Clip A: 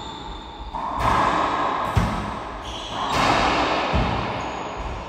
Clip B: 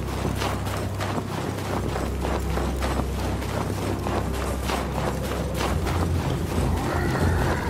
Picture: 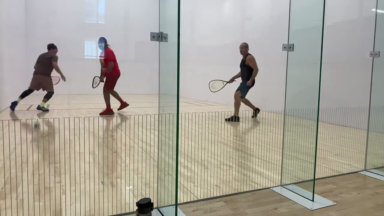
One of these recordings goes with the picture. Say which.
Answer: A